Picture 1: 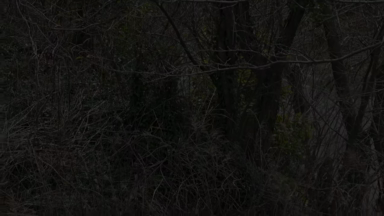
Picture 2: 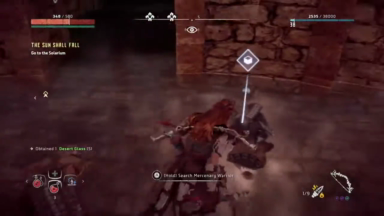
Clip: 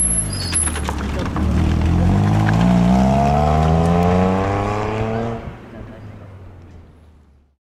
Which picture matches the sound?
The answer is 1